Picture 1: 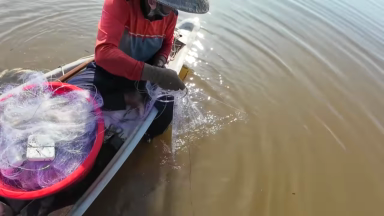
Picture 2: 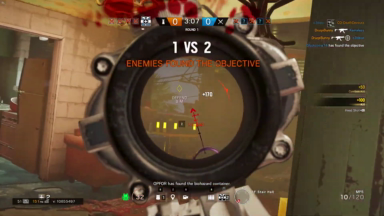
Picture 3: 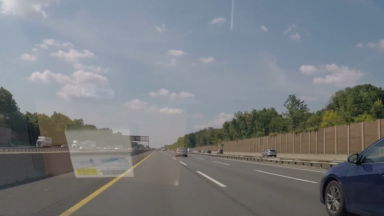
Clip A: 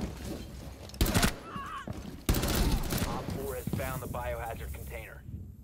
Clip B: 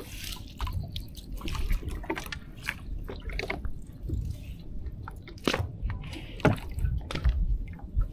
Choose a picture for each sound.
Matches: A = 2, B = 1